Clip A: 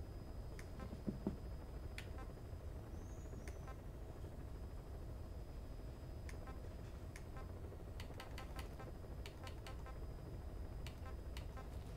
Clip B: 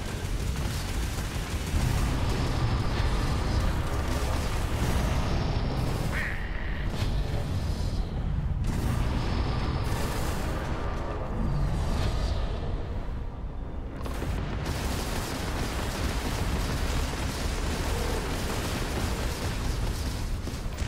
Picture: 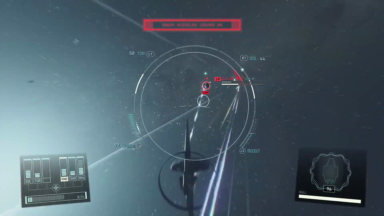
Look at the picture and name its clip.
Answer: B